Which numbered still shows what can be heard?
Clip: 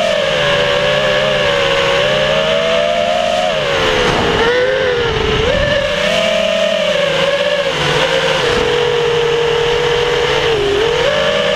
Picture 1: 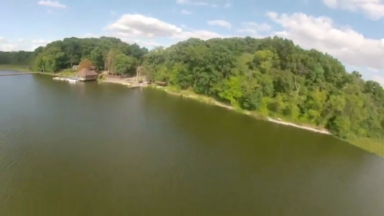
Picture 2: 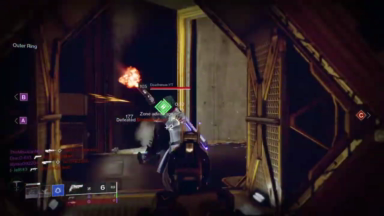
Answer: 1